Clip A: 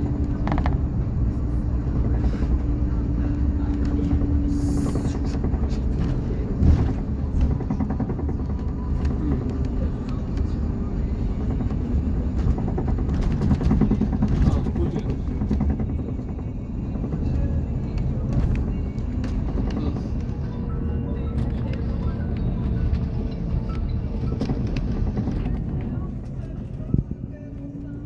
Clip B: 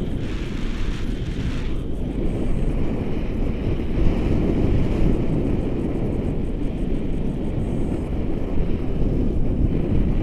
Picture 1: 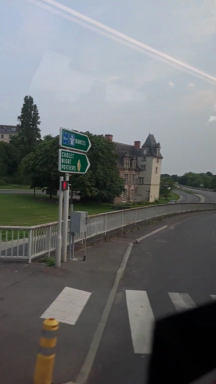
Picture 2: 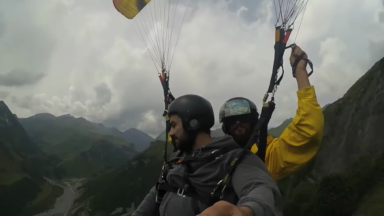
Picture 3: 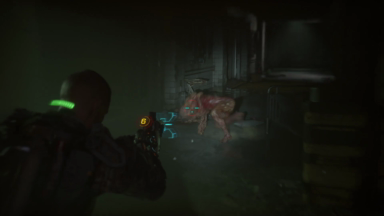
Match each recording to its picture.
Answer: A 1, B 2